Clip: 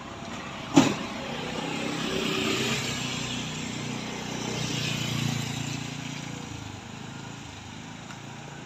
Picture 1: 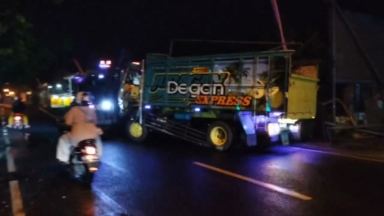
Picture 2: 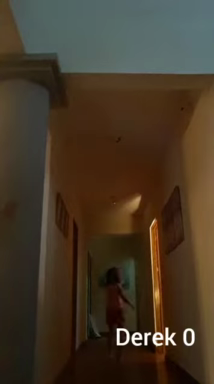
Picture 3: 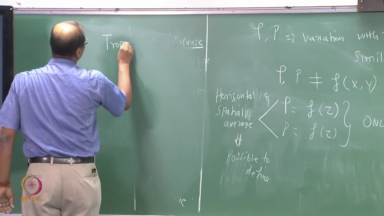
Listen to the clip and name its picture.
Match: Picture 1